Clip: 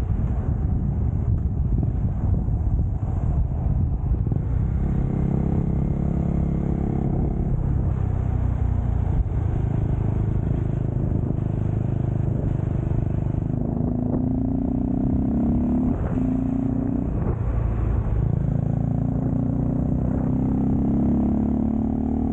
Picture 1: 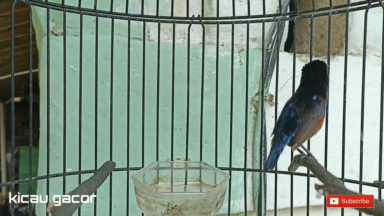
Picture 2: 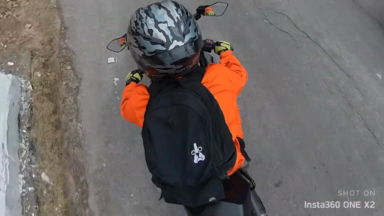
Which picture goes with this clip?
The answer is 2